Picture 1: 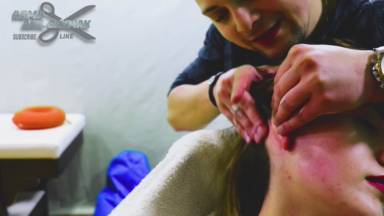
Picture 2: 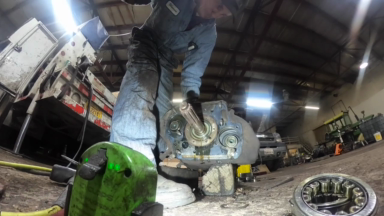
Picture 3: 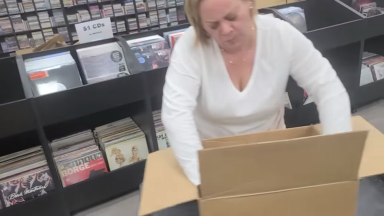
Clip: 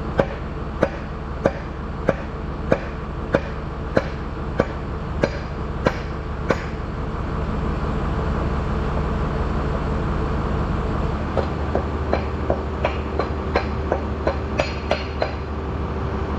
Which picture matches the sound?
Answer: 2